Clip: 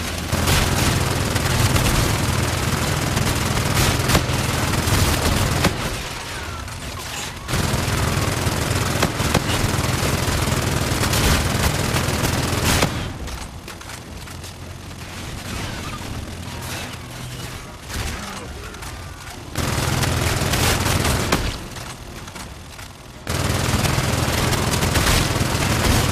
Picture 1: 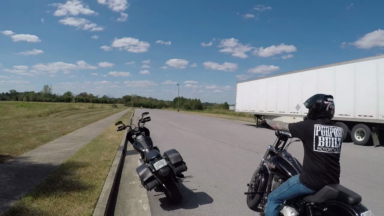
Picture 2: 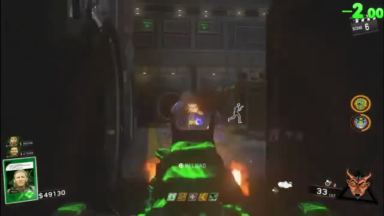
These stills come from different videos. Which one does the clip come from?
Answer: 2